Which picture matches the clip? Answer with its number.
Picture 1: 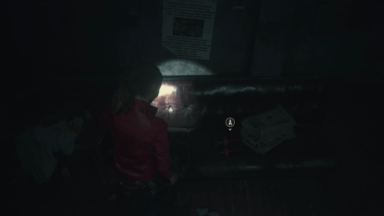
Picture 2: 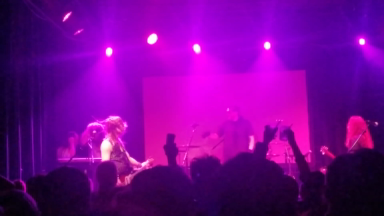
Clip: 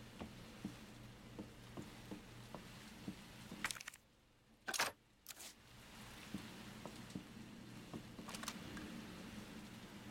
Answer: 1